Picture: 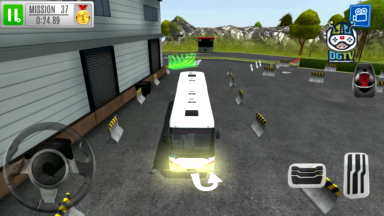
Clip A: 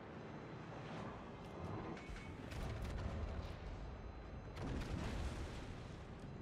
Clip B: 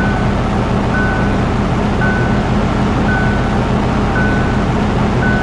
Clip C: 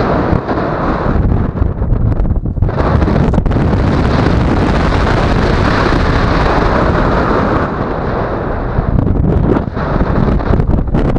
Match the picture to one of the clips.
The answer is B